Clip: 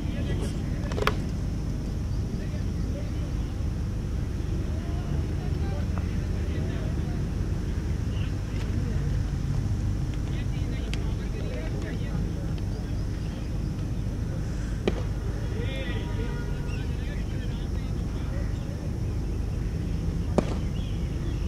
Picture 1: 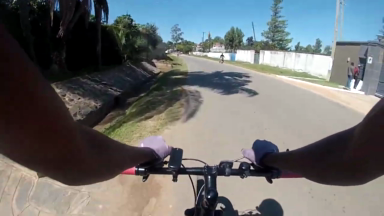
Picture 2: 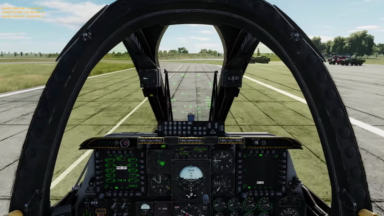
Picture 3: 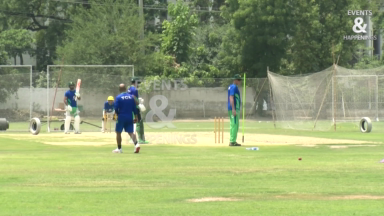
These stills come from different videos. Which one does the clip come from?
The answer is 3